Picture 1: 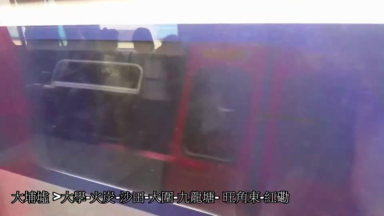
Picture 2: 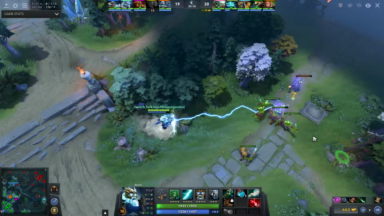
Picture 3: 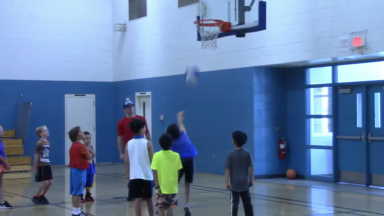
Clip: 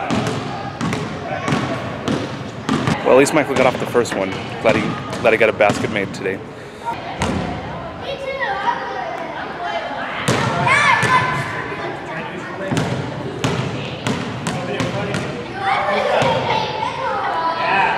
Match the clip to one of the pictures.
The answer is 3